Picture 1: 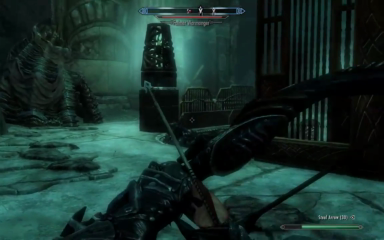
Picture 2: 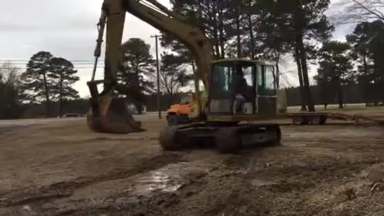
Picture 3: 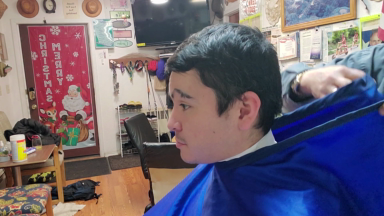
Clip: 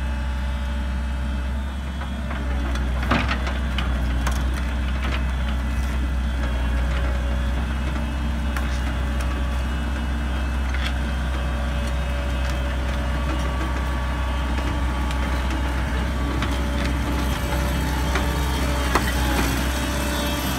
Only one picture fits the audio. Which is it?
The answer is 2